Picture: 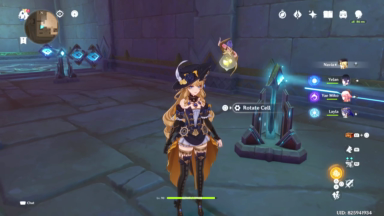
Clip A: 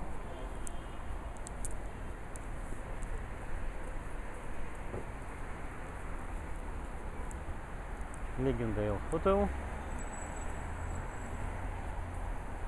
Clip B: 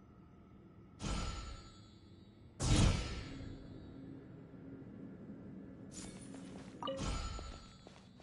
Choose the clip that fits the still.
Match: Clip B